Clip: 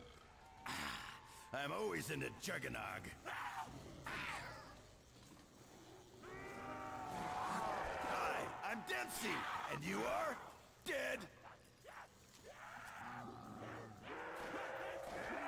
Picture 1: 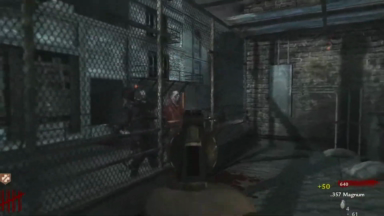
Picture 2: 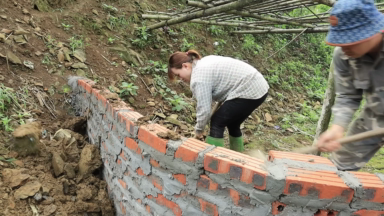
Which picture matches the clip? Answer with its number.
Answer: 1